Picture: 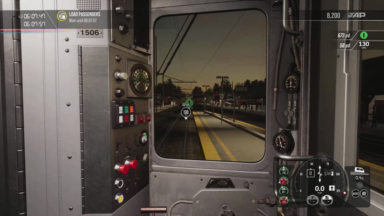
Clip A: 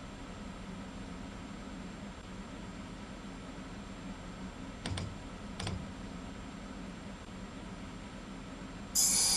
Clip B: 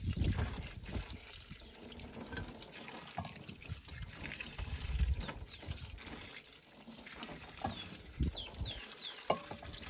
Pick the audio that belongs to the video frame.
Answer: A